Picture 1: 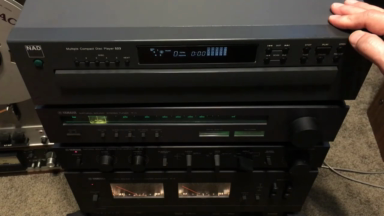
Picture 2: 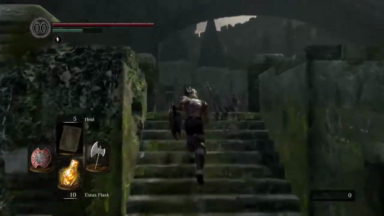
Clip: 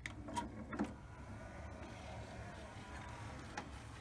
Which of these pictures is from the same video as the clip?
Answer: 1